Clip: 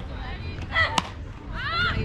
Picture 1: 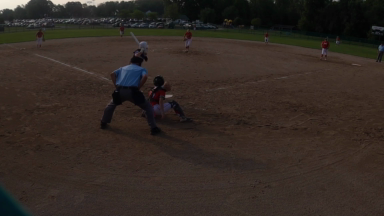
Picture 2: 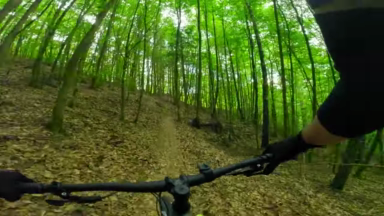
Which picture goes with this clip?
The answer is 1